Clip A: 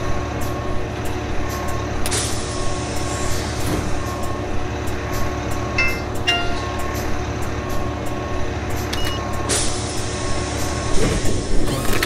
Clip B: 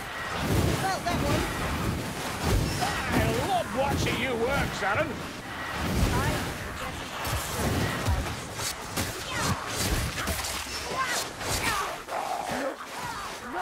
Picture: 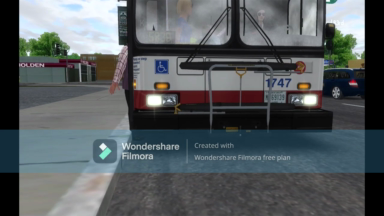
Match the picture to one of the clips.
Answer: A